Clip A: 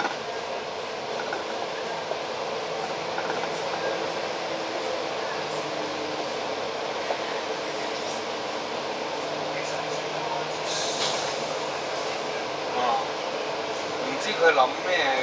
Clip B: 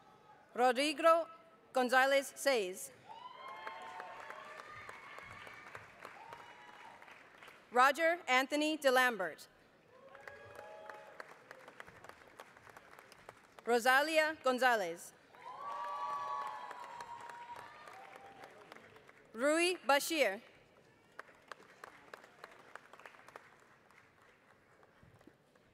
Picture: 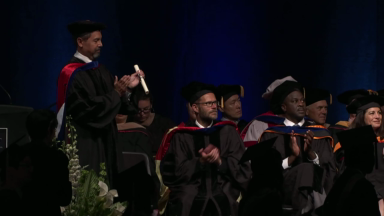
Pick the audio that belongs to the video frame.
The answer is B